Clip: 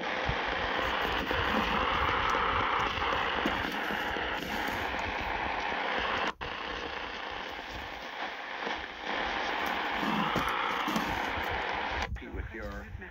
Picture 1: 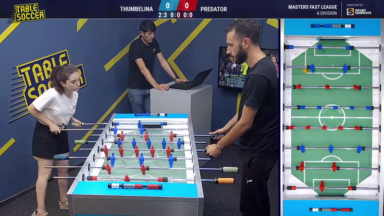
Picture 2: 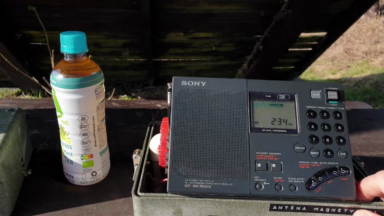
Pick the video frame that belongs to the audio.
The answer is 2